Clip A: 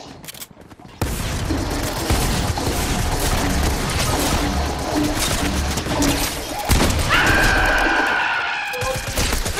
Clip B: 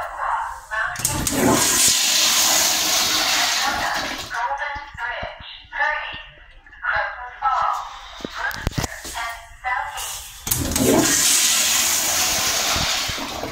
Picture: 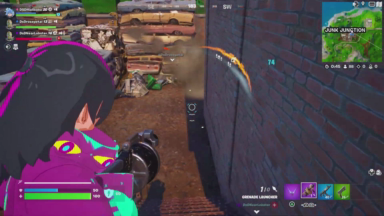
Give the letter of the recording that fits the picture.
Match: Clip A